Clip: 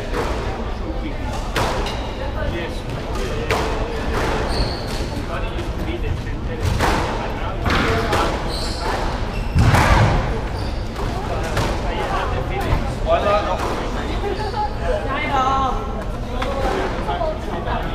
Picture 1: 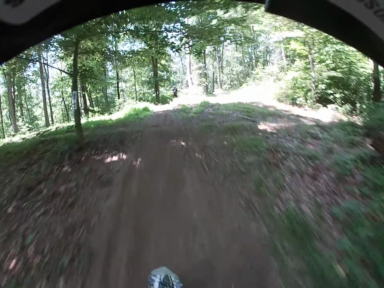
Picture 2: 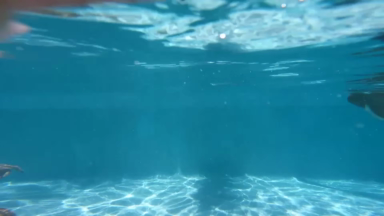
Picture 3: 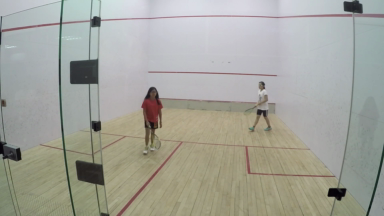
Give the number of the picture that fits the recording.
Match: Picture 3